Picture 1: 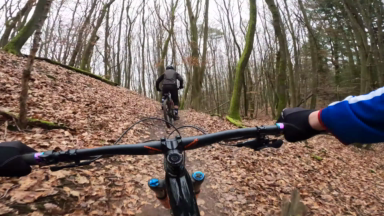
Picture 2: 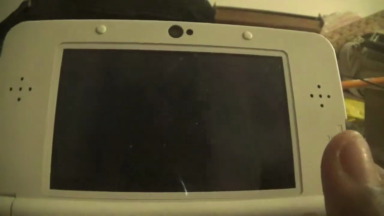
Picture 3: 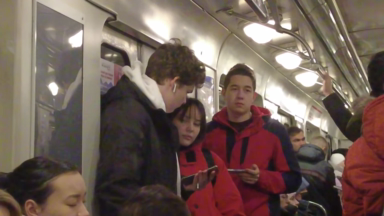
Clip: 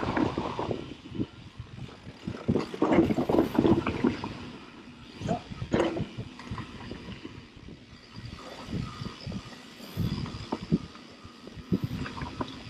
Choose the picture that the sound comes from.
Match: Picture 1